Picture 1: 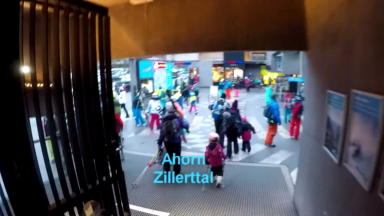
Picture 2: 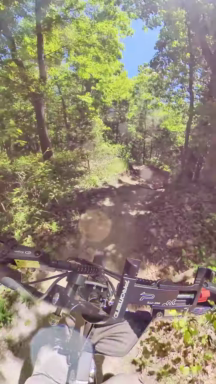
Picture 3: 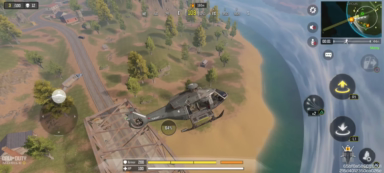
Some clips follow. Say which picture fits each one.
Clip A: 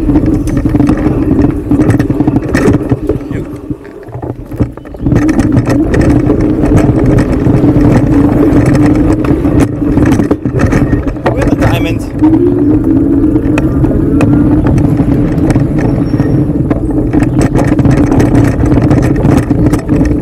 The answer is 2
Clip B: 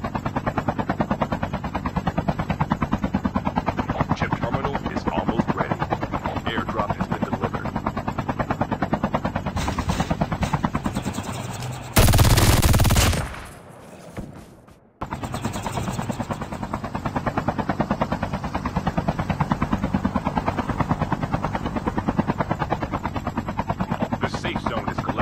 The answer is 3